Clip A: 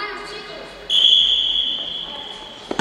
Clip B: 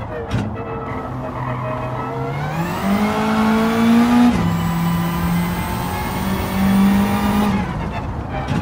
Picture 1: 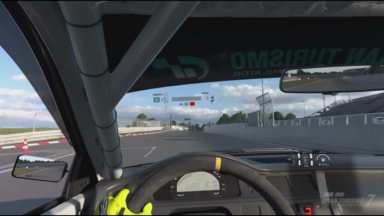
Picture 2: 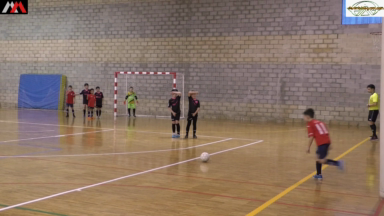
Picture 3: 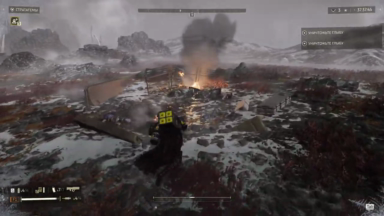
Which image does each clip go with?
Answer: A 2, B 1